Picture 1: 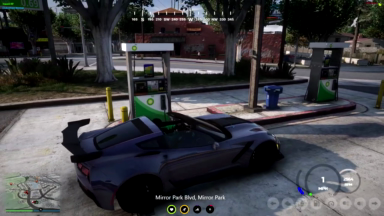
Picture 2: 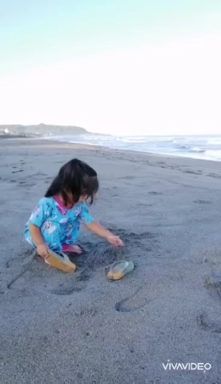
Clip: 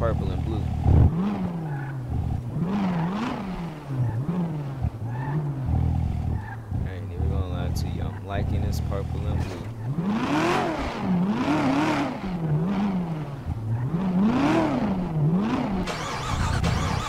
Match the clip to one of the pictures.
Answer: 1